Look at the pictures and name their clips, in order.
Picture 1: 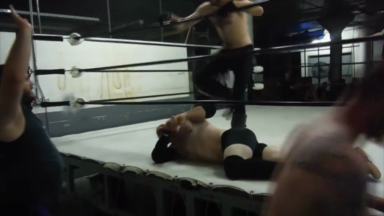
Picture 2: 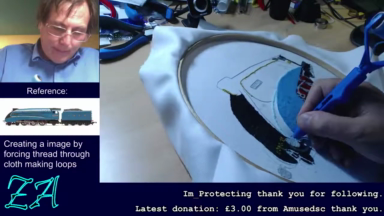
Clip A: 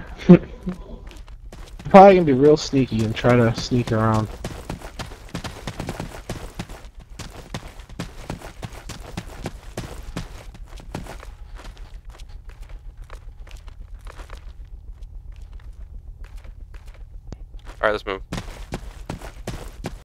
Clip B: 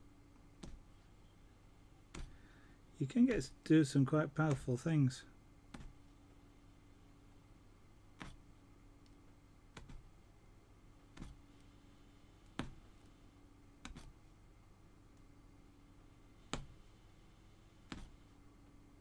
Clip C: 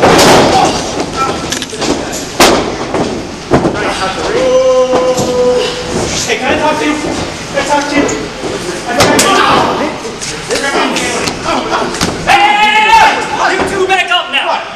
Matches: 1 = C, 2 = B